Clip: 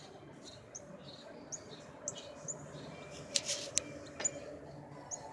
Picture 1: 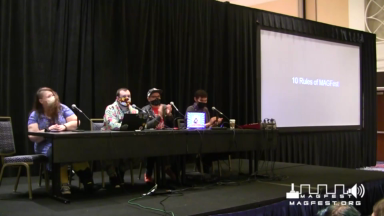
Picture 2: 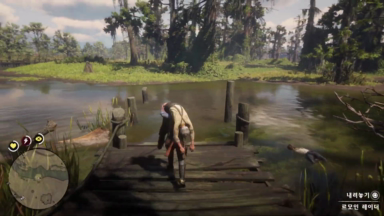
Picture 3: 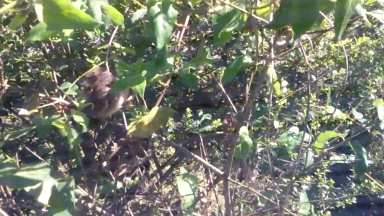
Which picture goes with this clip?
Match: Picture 3